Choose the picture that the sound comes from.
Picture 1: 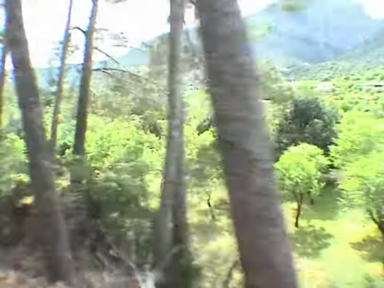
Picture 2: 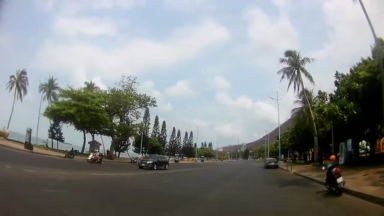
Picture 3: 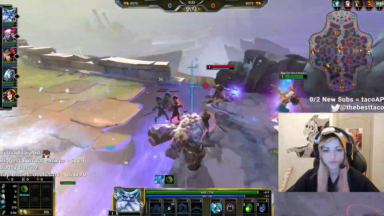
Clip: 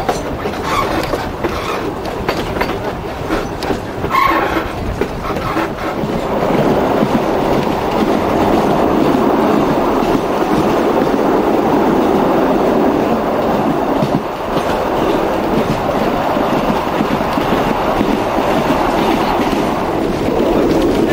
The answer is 1